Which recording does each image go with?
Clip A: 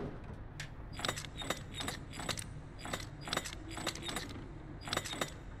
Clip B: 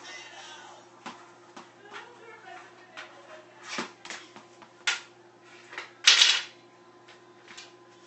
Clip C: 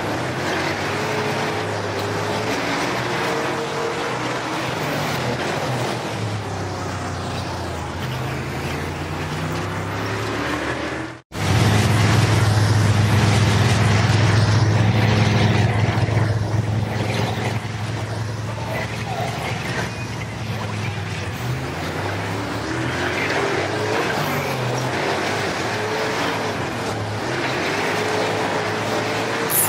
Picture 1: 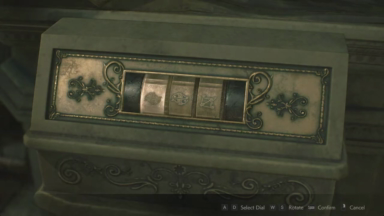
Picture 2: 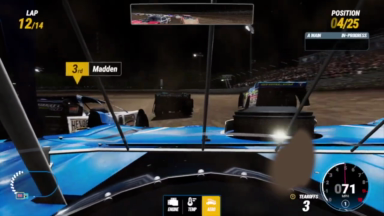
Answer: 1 A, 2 C